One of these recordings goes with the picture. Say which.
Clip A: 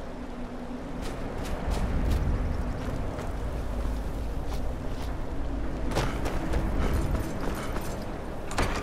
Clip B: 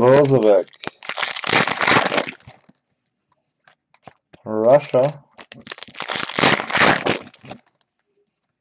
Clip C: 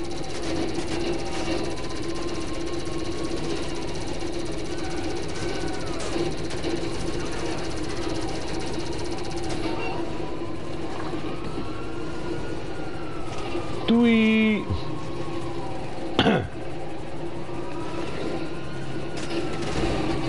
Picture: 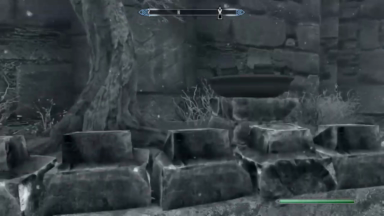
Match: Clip A